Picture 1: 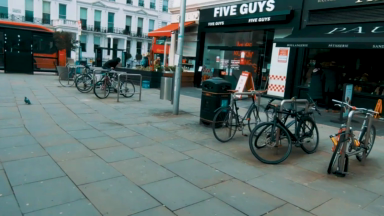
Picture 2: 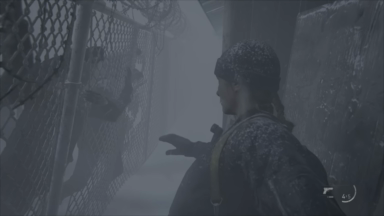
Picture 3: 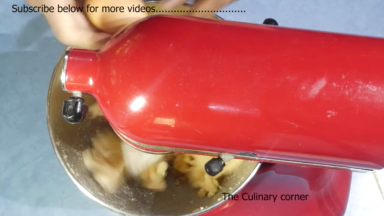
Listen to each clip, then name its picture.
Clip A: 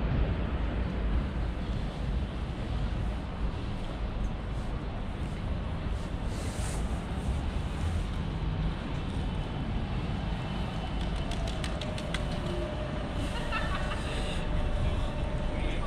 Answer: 1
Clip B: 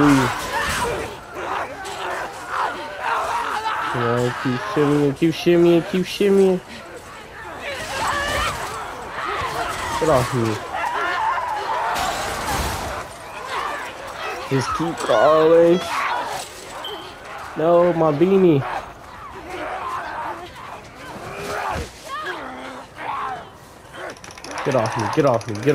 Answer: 2